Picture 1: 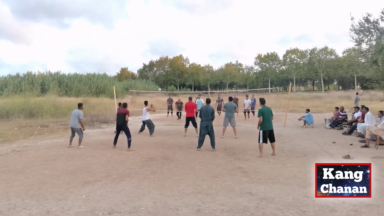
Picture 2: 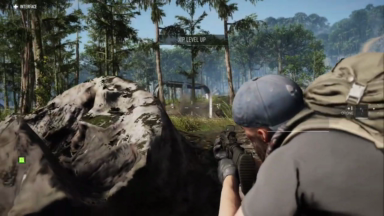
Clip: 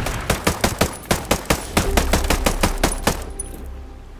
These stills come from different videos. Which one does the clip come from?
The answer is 2